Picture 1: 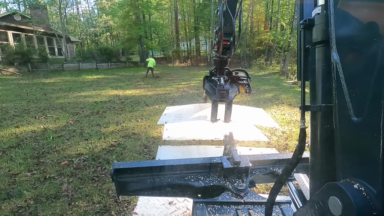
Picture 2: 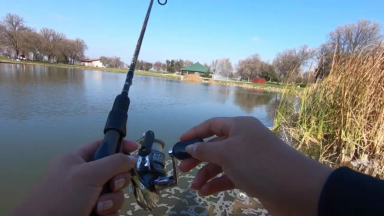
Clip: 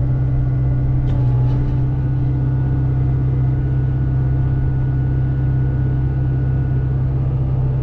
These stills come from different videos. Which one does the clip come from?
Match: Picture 1